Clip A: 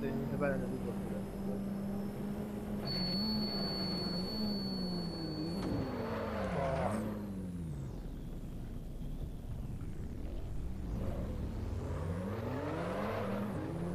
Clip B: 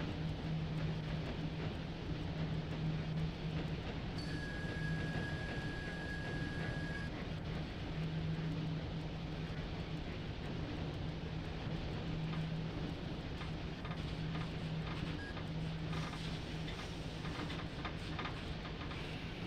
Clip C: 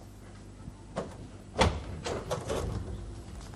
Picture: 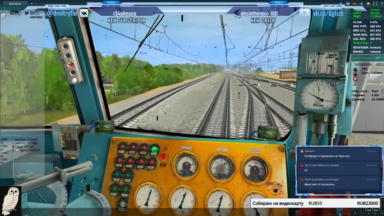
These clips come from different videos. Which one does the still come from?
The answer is B